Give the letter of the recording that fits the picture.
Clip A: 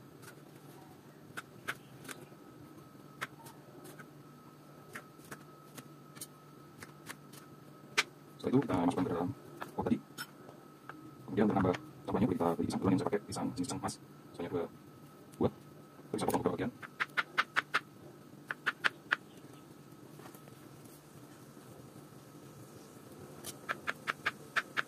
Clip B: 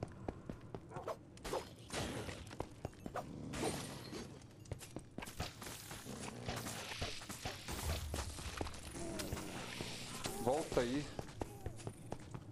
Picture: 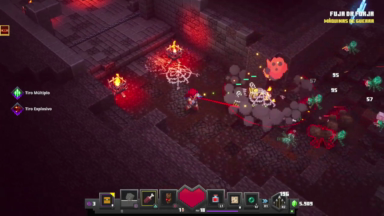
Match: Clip B